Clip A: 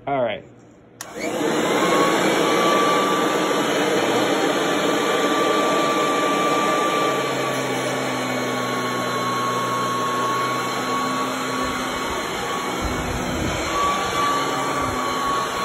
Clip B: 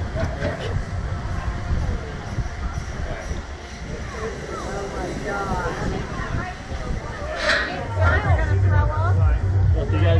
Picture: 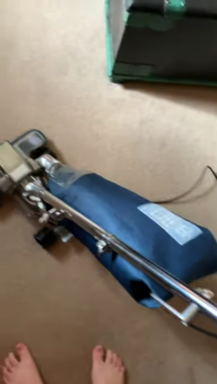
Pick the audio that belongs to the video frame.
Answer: A